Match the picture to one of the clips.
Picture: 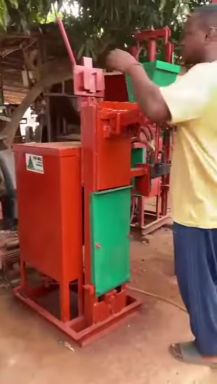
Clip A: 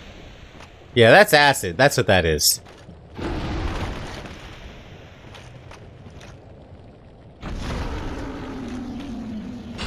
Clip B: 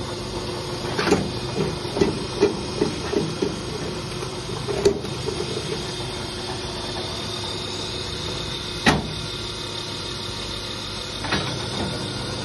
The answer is B